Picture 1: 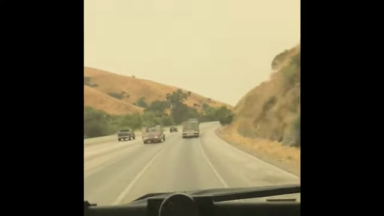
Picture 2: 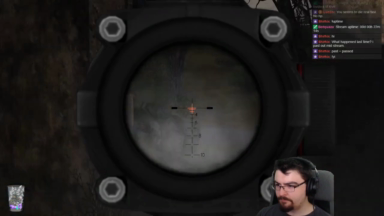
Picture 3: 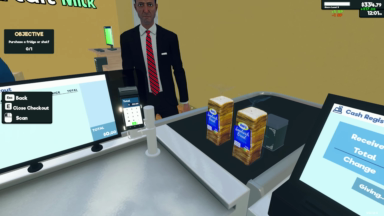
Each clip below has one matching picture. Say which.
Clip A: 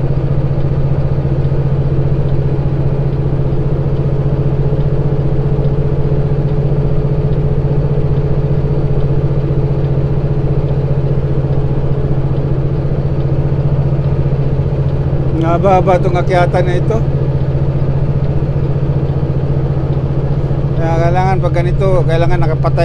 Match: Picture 1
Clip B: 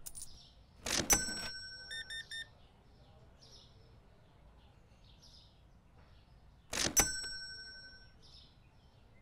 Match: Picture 3